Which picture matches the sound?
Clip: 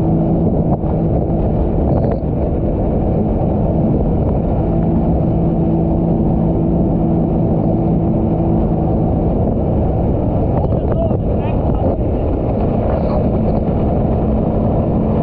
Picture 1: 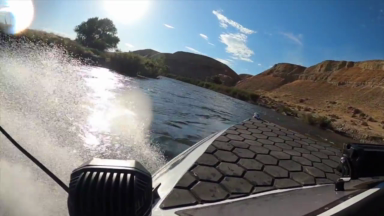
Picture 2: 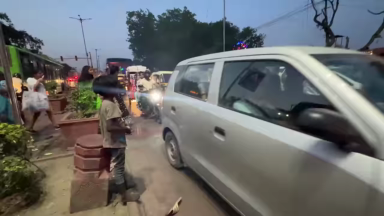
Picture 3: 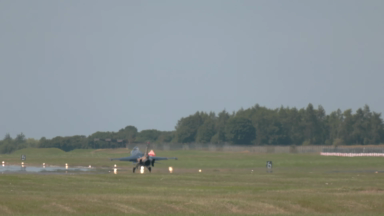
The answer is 1